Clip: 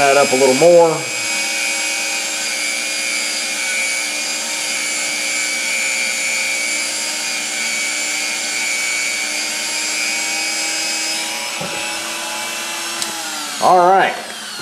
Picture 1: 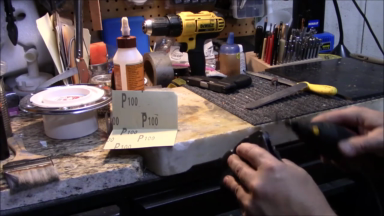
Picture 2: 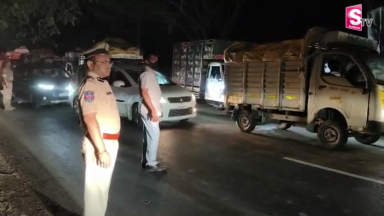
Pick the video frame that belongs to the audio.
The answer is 1